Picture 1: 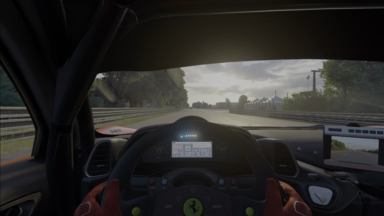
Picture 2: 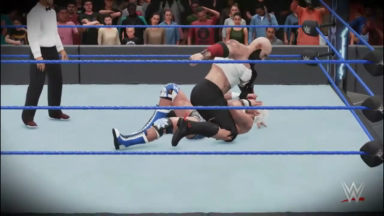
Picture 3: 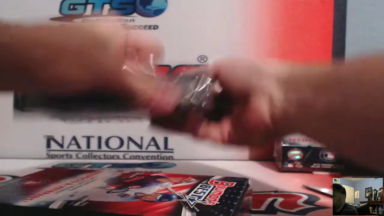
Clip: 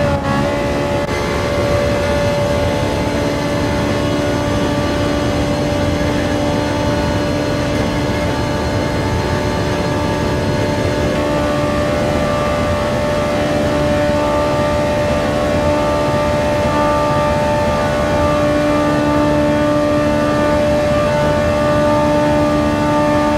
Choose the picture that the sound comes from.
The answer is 1